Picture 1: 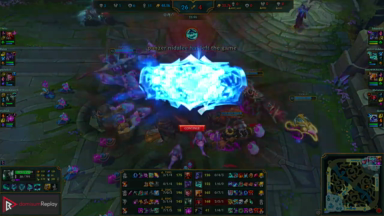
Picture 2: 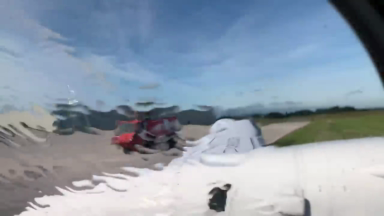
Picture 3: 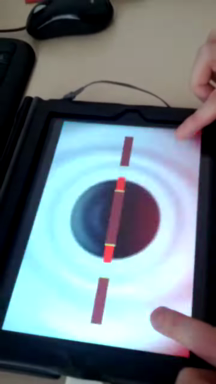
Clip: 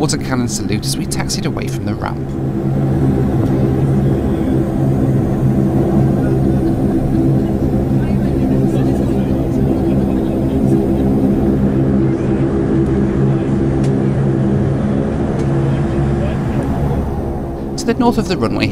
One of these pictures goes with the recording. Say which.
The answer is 2